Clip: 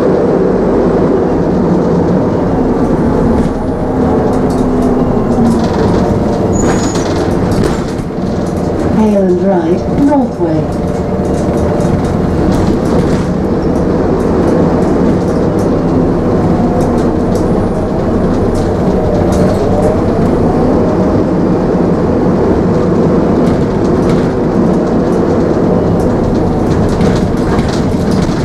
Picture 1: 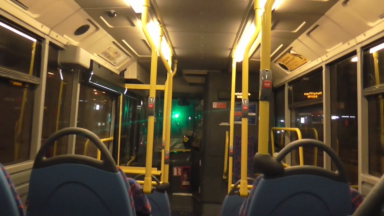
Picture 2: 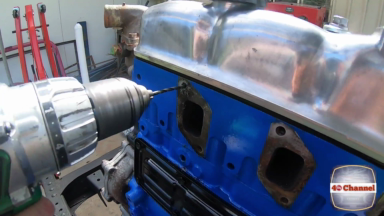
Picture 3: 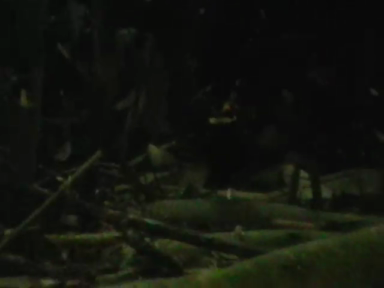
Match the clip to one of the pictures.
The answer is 1